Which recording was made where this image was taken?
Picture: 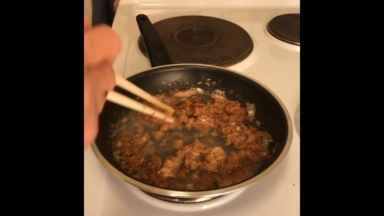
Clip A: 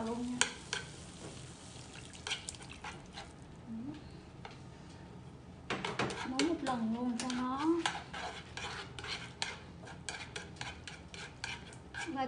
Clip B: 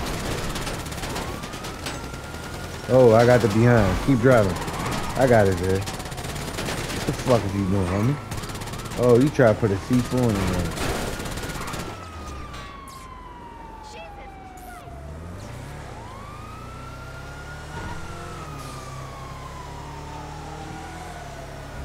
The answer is A